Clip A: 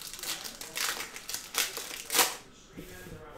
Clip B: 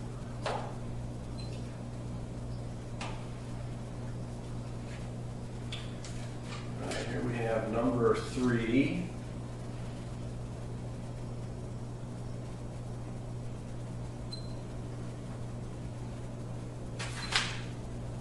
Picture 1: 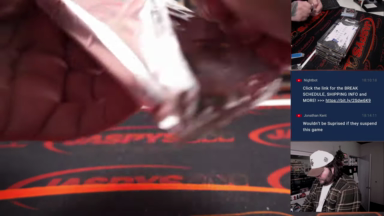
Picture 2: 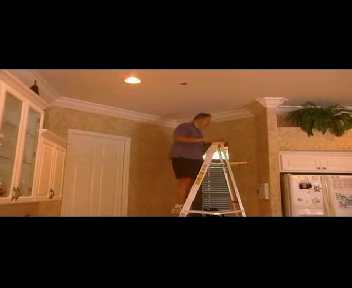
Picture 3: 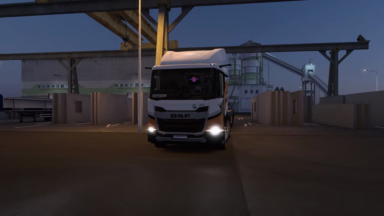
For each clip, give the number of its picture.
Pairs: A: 1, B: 2